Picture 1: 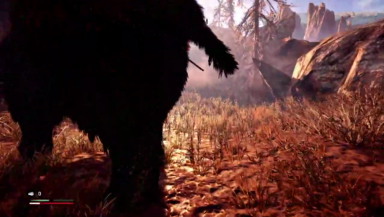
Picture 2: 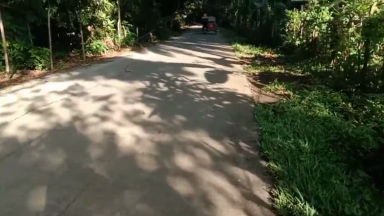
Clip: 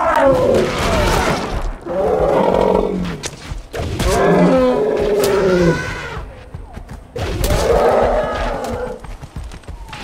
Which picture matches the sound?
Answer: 1